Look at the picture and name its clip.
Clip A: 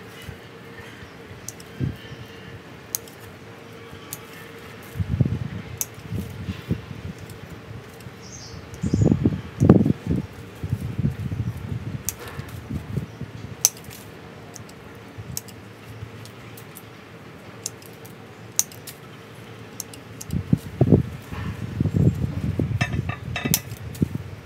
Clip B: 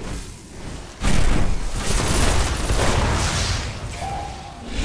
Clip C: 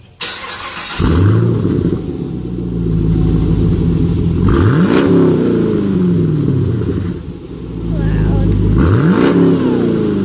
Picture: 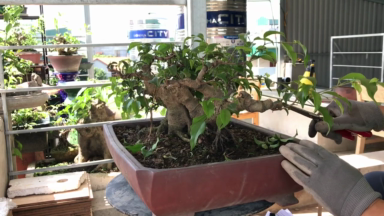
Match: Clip A